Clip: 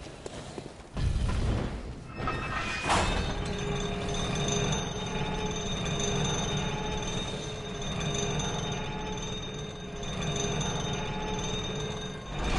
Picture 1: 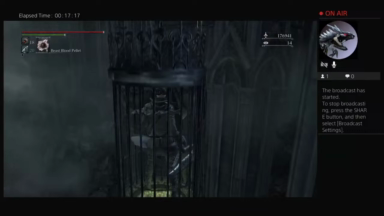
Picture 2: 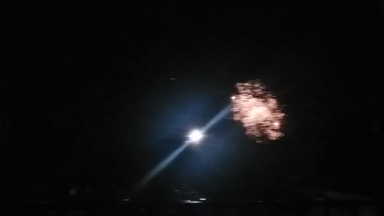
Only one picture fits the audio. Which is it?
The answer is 1